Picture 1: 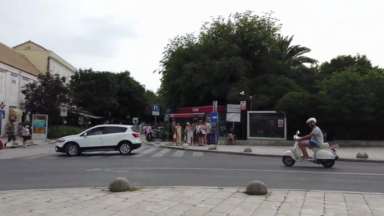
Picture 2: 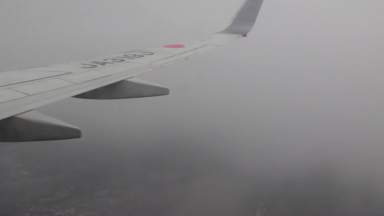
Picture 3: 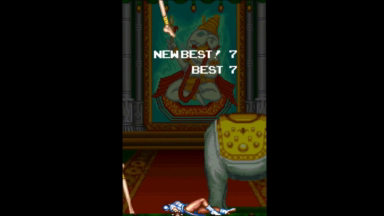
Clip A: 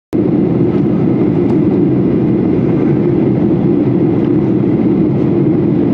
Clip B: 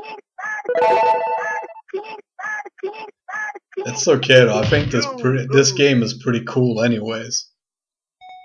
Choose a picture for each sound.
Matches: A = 2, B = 3